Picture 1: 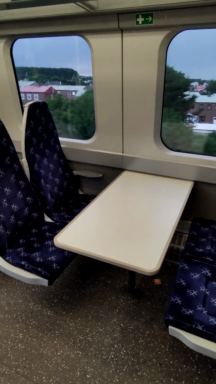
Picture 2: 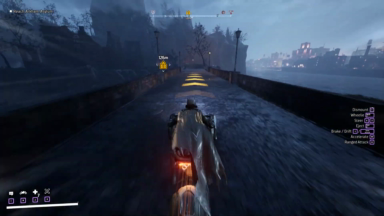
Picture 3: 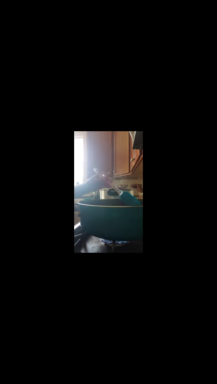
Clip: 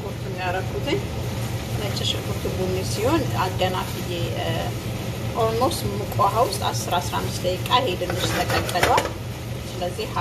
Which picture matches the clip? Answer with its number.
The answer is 3